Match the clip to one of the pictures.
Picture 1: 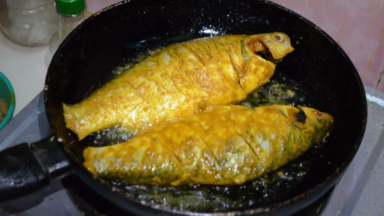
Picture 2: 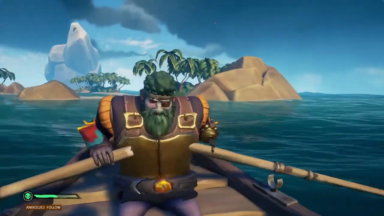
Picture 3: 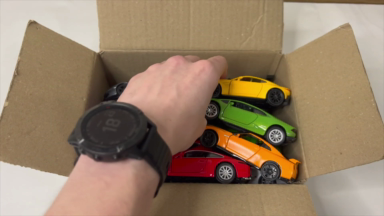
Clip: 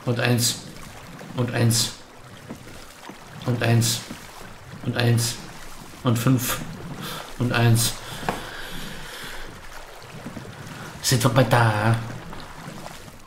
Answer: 2